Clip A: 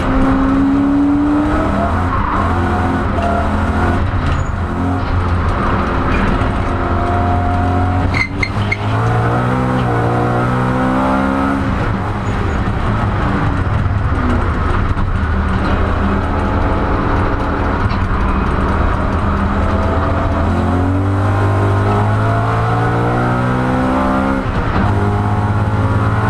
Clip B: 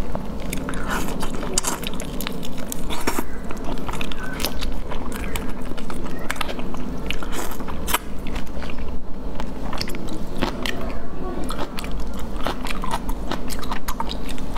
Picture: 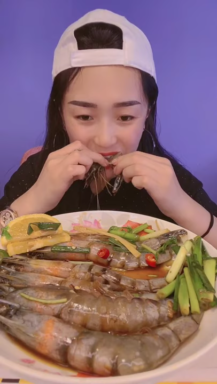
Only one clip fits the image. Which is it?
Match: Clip B